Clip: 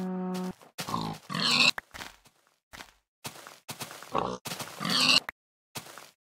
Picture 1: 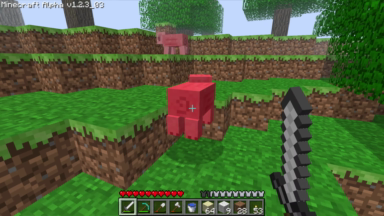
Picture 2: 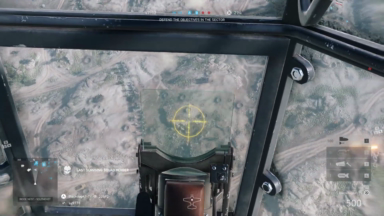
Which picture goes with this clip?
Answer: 1